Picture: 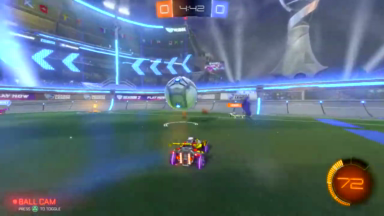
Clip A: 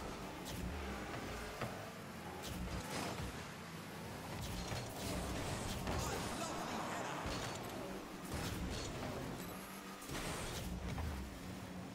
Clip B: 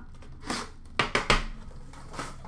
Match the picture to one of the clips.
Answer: A